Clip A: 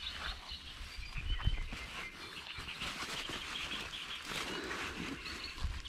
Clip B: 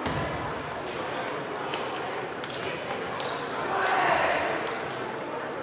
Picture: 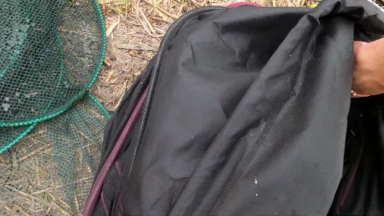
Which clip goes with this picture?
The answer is A